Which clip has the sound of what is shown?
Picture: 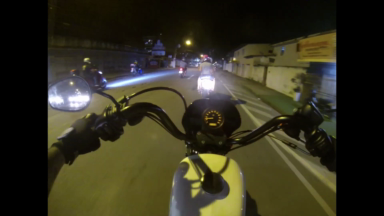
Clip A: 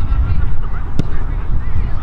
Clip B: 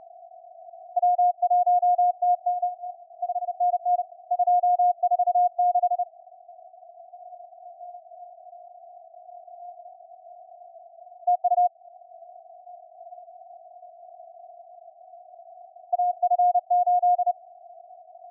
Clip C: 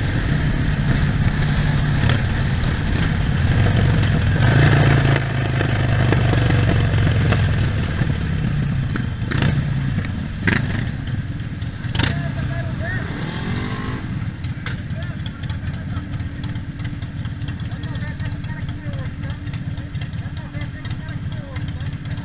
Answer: C